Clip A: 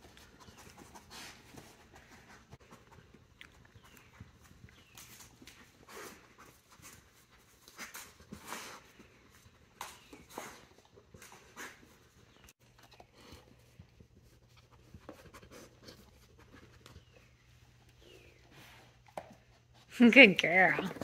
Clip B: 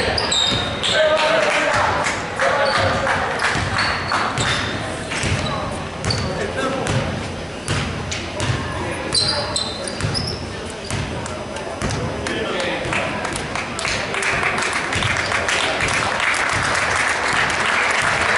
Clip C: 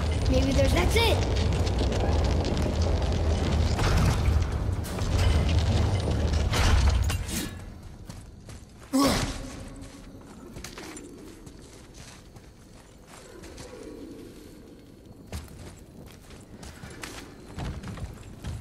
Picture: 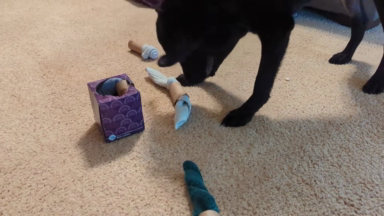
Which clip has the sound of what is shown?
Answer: A